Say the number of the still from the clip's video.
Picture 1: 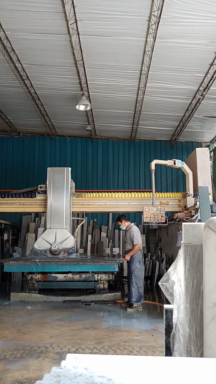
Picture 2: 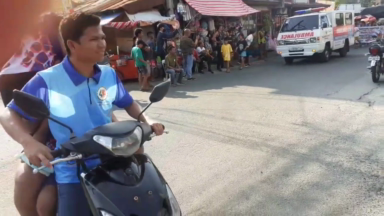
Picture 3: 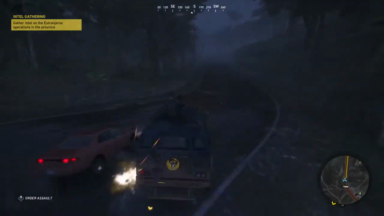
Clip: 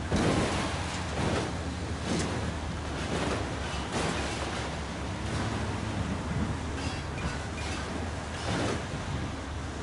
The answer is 3